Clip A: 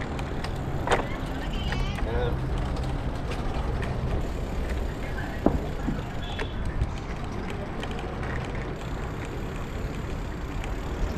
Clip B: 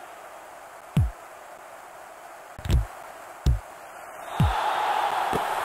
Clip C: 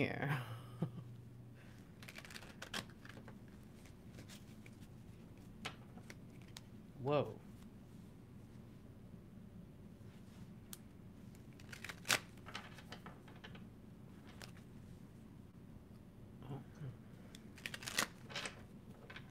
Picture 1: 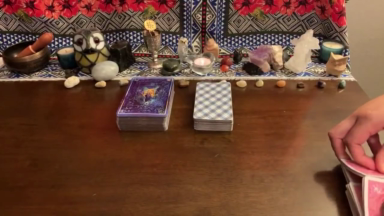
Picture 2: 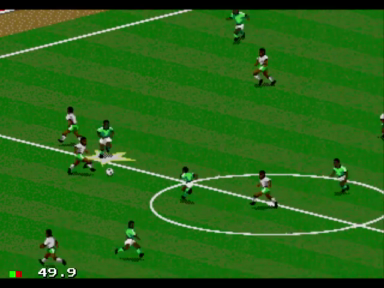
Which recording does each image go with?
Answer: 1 C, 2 B